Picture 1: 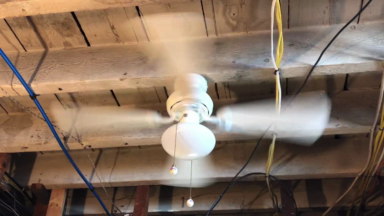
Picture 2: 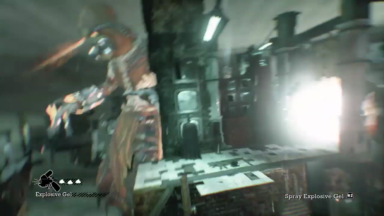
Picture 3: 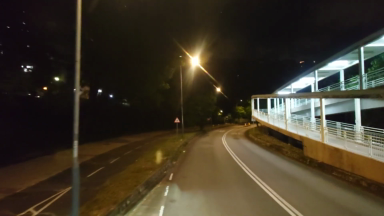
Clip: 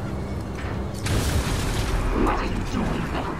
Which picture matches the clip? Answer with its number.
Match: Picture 2